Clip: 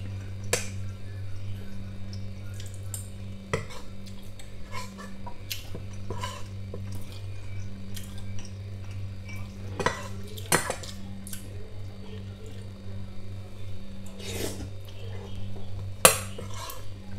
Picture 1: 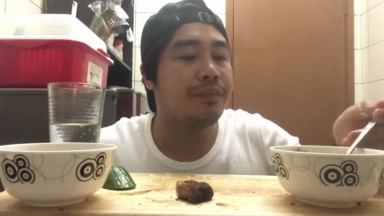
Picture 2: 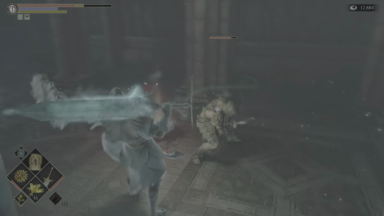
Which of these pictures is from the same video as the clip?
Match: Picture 1